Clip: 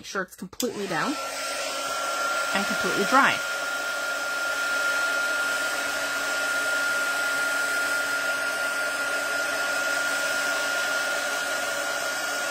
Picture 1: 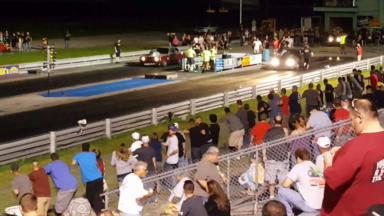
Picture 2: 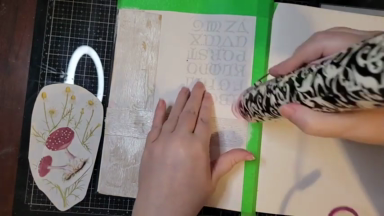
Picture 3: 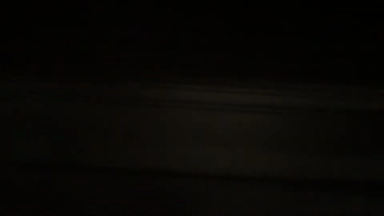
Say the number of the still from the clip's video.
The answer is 2